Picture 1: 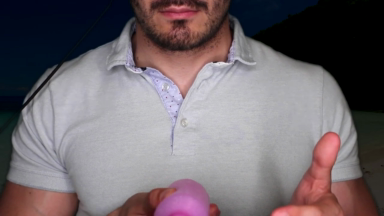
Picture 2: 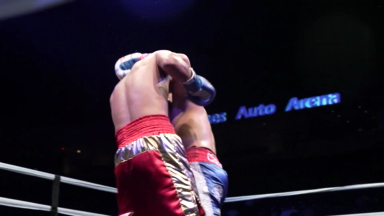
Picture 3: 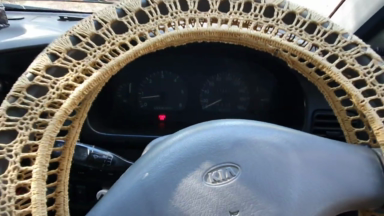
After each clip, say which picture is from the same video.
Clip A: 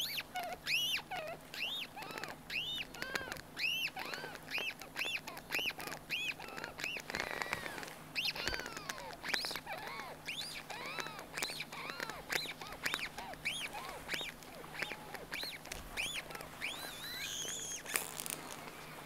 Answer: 1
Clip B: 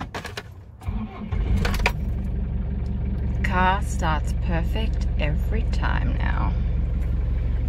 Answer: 3